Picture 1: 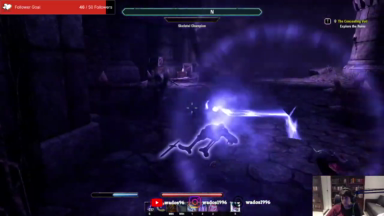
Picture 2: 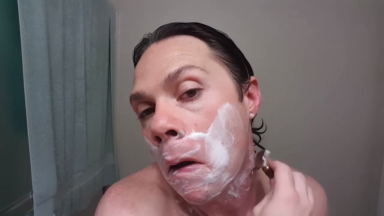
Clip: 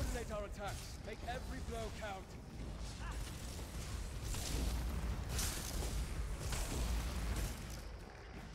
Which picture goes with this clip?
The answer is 1